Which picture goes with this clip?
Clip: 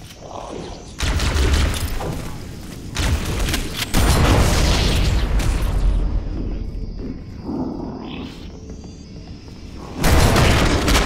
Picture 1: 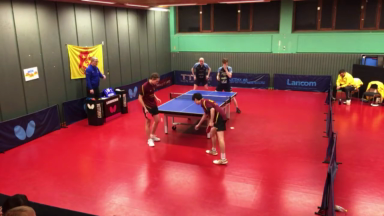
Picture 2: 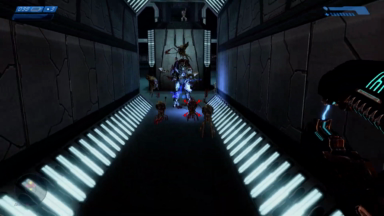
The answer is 2